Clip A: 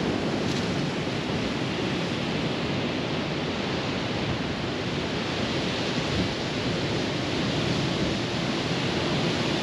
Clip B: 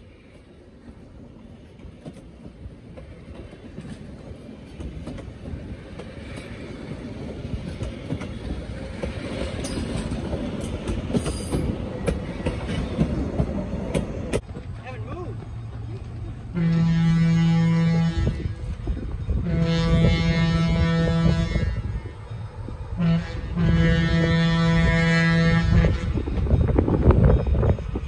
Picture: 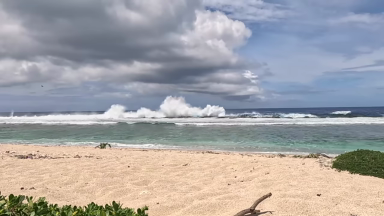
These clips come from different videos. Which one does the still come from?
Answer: A